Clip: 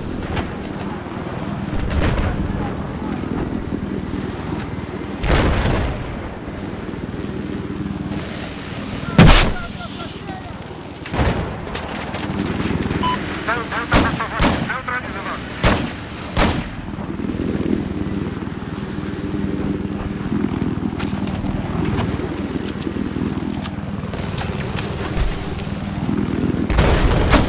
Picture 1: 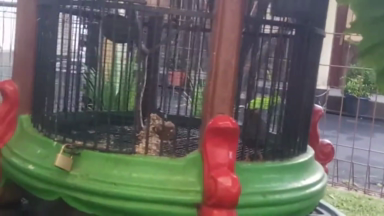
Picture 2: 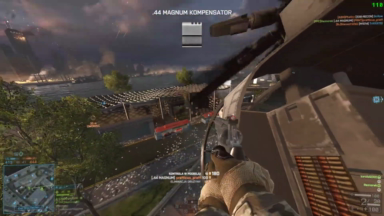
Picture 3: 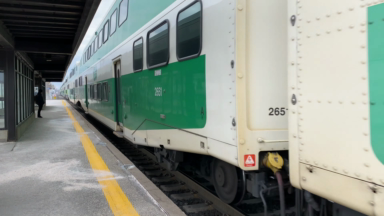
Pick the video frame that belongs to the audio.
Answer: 2